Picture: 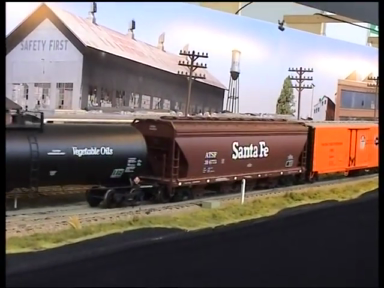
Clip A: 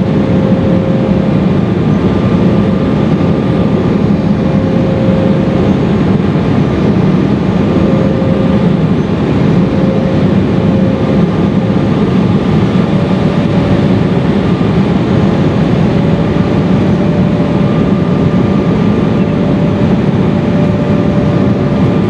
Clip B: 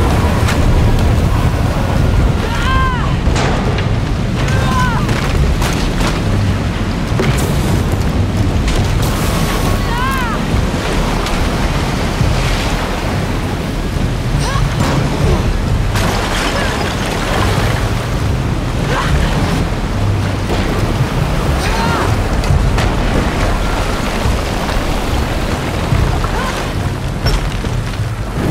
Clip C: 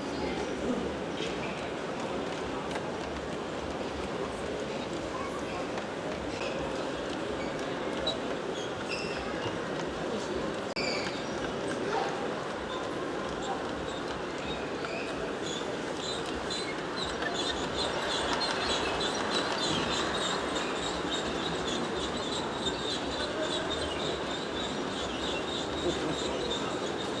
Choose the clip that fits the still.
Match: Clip C